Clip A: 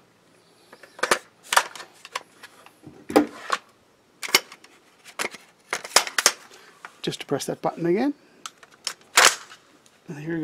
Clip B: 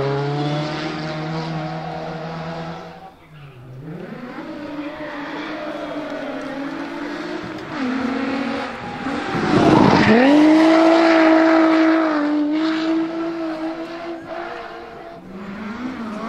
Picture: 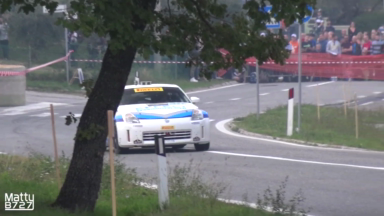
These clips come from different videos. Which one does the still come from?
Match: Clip B